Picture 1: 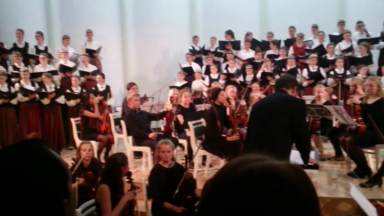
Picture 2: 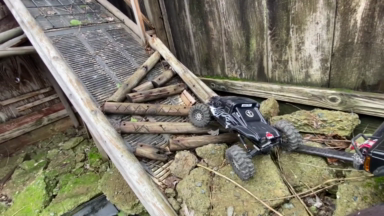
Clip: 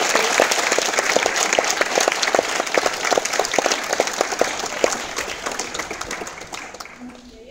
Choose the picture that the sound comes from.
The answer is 1